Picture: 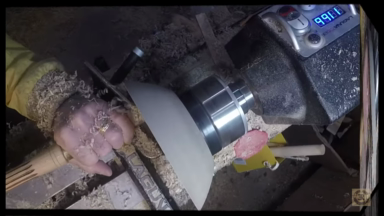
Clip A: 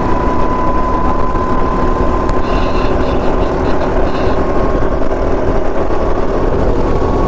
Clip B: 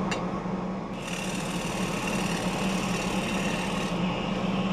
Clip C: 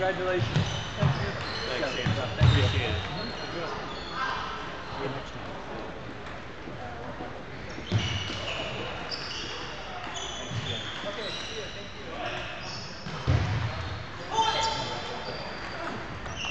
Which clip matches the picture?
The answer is B